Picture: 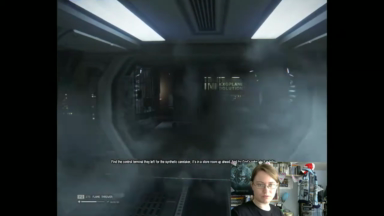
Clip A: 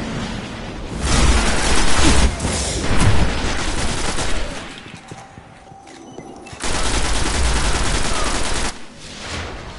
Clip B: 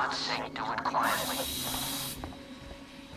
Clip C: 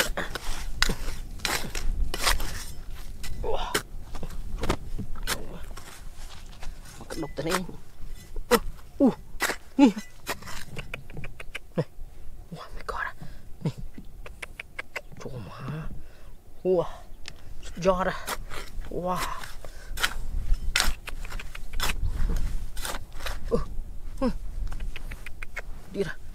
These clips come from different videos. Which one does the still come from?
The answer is B